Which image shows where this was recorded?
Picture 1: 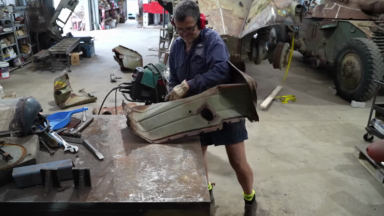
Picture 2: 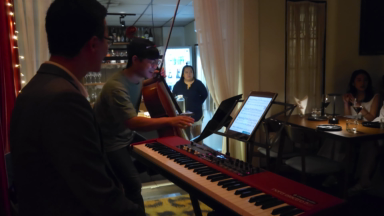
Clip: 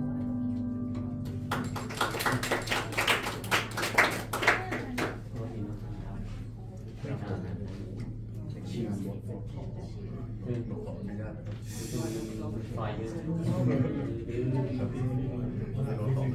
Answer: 2